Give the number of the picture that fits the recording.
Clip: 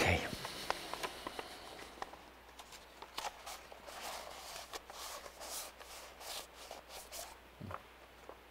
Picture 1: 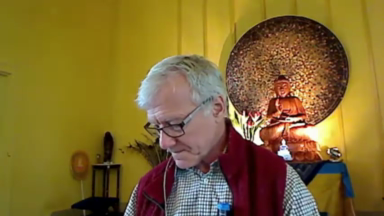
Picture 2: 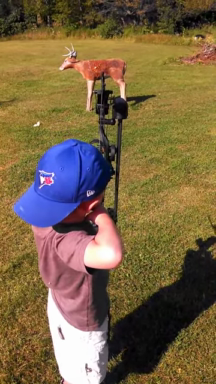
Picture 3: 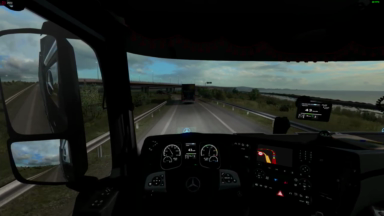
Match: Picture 1